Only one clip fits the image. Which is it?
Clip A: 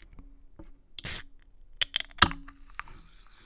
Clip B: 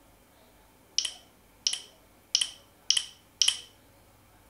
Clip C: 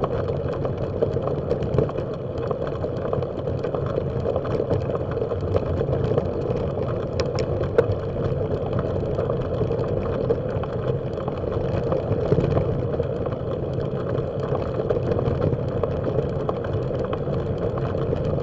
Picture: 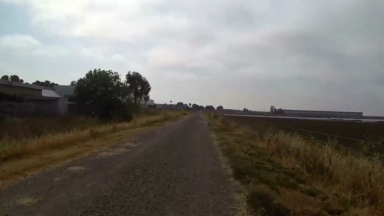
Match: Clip C